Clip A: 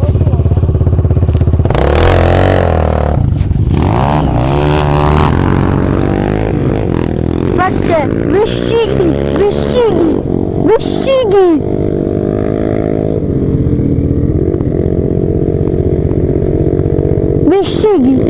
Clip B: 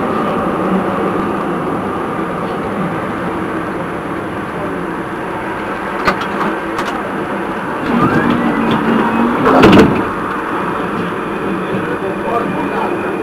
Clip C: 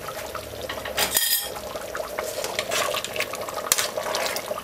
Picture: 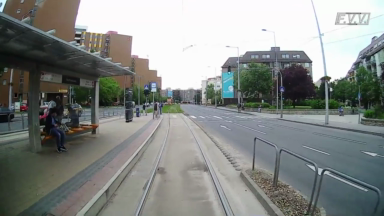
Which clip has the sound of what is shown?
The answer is B